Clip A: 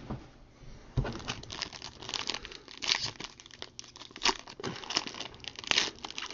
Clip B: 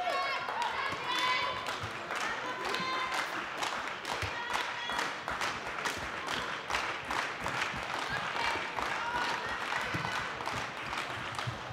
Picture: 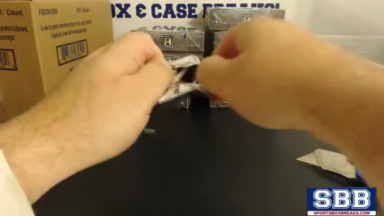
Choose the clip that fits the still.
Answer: A